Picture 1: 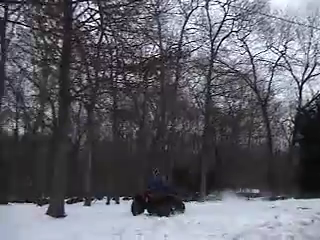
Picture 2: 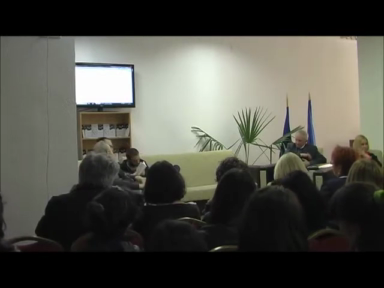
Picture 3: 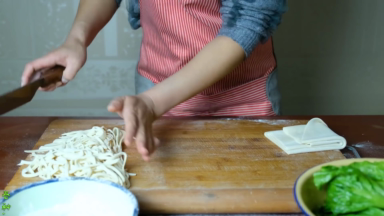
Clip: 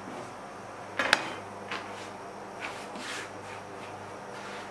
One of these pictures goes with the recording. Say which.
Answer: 3